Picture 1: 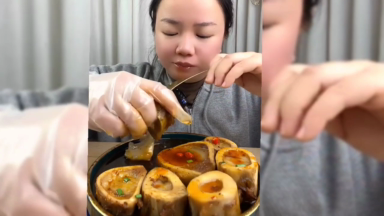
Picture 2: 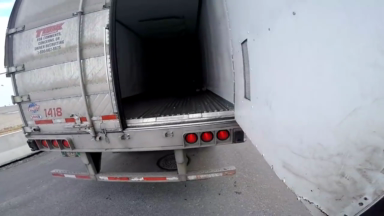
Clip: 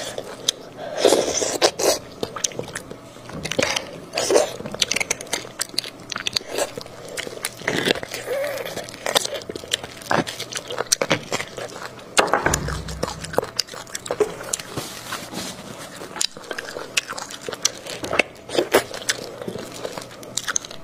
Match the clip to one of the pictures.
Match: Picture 1